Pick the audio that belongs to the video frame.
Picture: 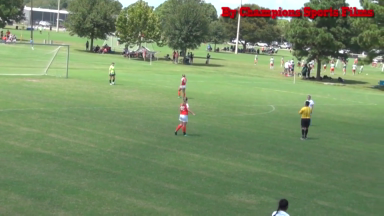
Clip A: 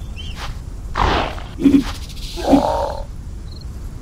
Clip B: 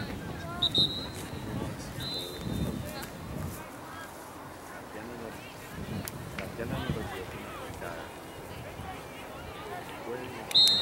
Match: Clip B